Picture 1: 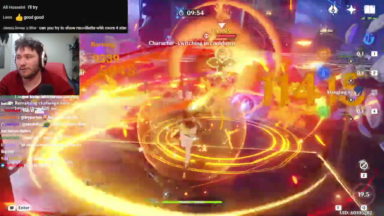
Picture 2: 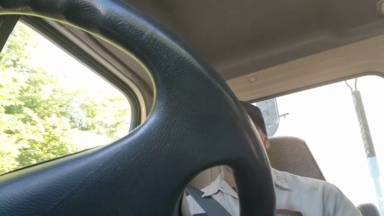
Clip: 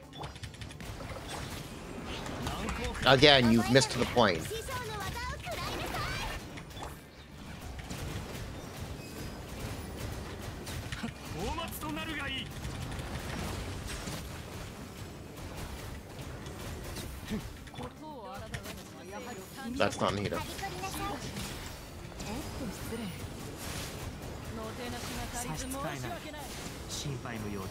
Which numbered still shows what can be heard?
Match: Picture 1